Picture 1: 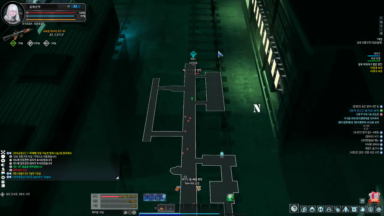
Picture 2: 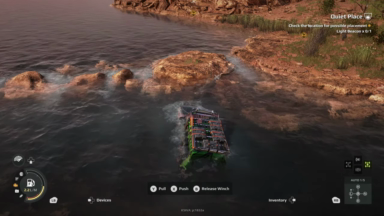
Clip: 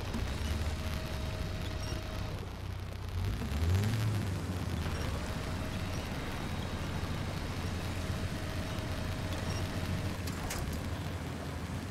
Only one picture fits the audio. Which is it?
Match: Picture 2